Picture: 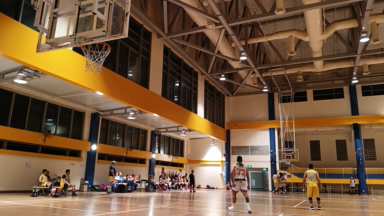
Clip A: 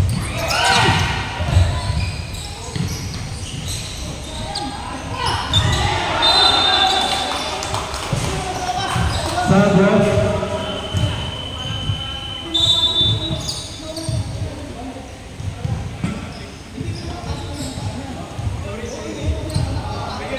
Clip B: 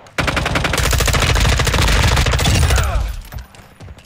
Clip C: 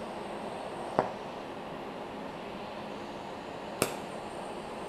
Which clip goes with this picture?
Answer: A